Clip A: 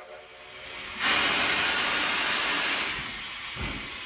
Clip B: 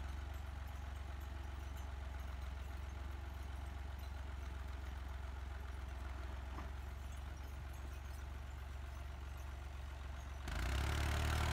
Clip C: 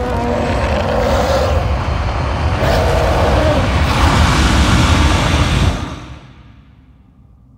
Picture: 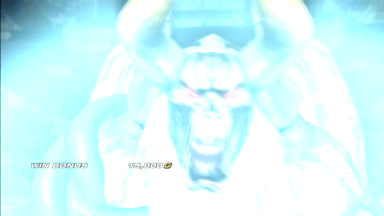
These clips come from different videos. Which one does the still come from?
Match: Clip C